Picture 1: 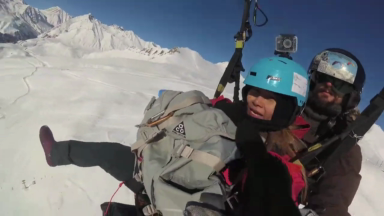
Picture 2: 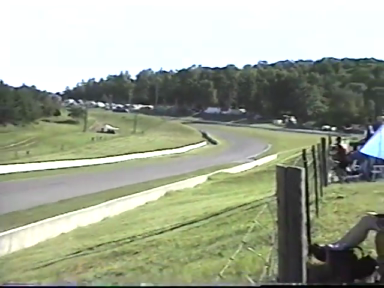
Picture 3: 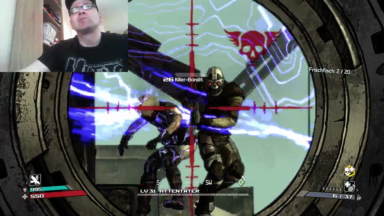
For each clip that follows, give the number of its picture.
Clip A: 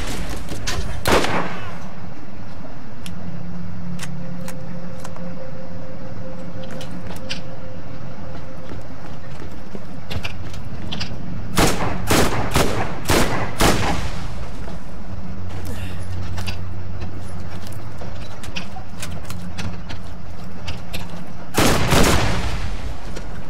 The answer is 3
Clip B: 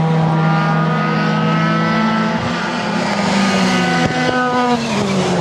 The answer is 2